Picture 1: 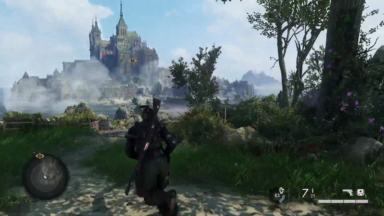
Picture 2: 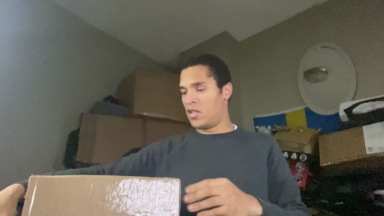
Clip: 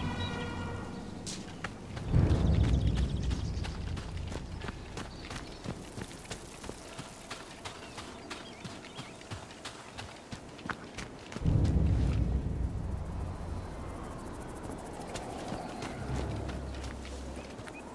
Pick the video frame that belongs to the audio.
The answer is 1